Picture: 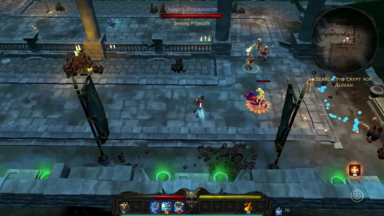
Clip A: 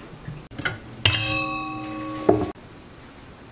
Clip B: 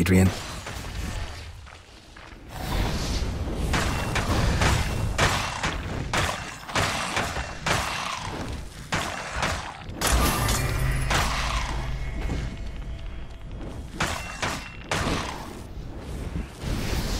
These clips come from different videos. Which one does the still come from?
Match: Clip B